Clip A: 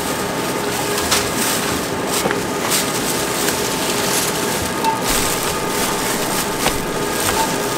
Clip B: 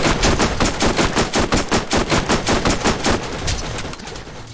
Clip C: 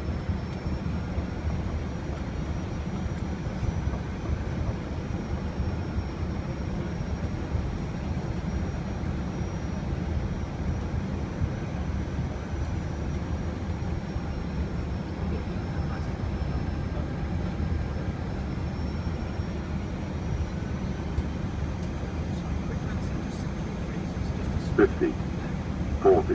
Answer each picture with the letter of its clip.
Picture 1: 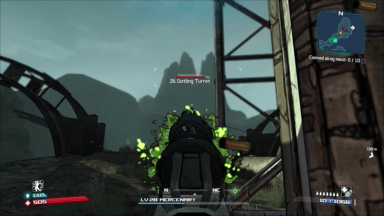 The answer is B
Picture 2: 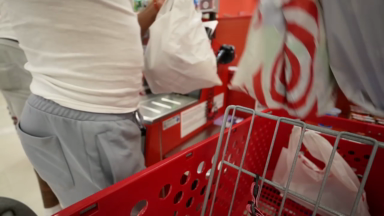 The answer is A